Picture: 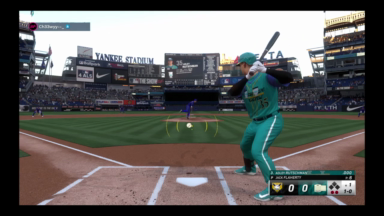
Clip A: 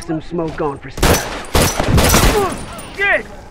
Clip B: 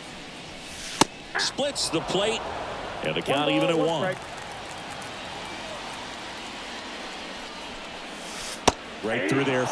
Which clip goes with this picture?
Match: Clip B